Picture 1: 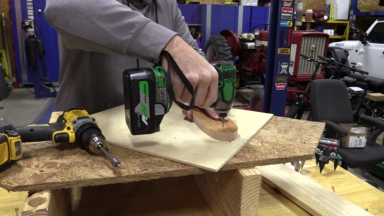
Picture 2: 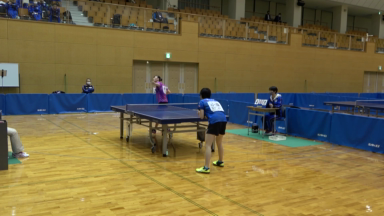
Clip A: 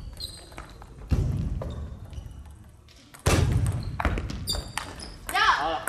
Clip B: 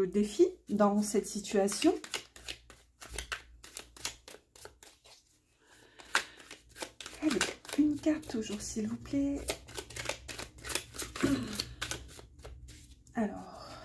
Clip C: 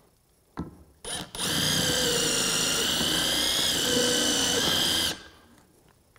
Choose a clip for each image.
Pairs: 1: C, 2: A